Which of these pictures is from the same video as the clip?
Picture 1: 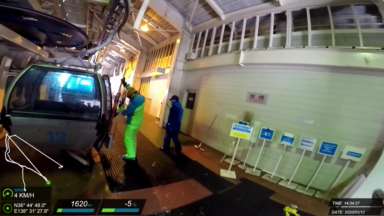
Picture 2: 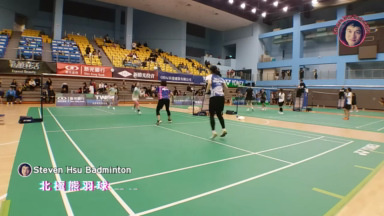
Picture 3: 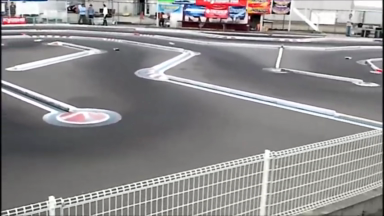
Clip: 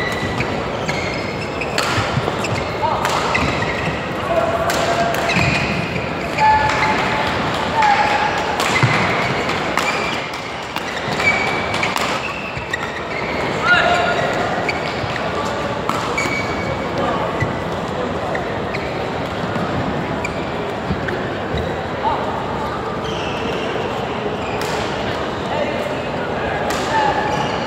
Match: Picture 2